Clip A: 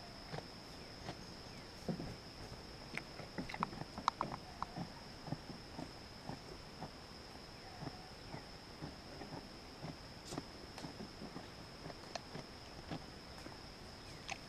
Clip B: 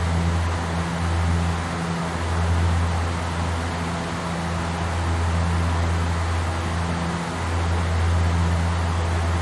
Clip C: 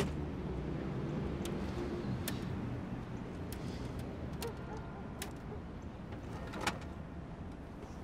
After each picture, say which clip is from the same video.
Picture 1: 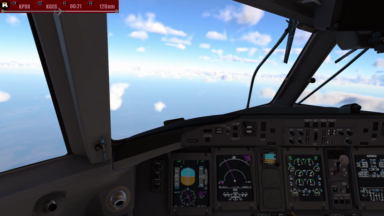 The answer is B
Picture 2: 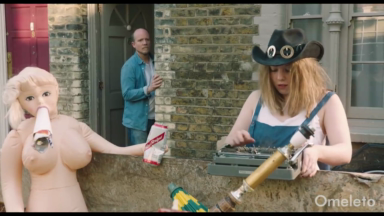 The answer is C